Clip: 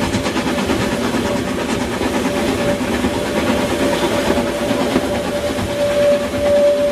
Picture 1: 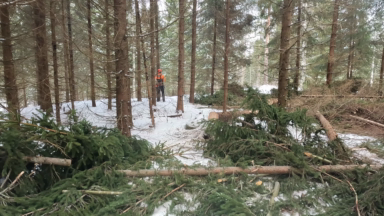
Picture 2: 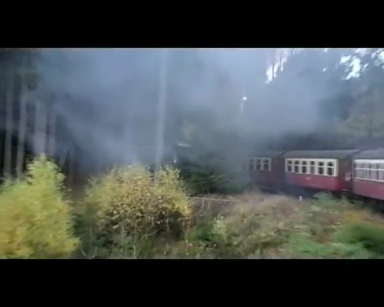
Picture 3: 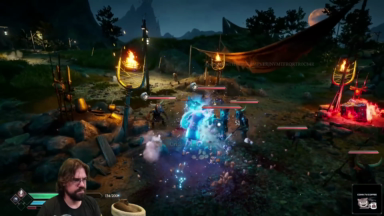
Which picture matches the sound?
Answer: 2